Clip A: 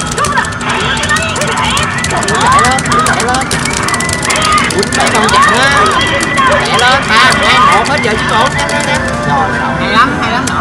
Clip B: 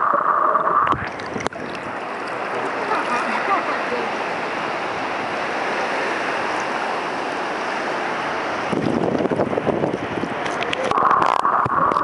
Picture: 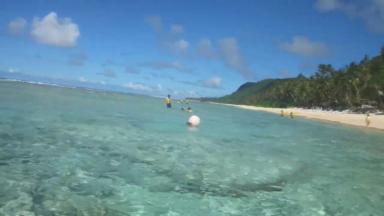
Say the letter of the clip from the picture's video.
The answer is B